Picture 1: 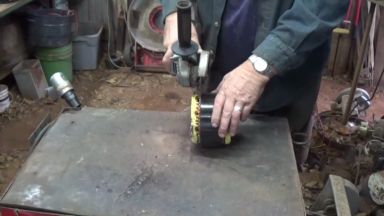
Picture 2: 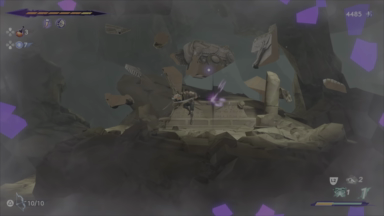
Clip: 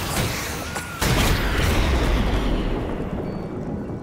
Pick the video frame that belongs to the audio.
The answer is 2